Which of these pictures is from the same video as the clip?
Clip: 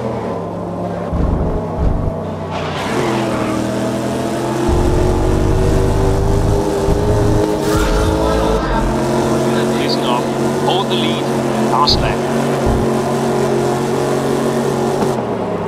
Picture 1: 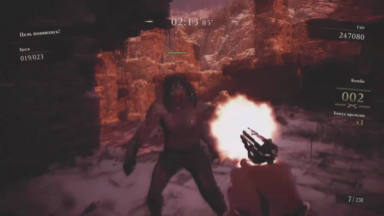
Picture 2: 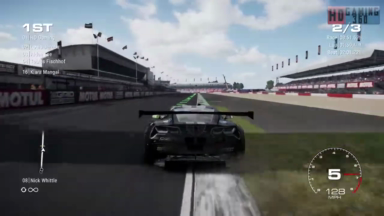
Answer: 2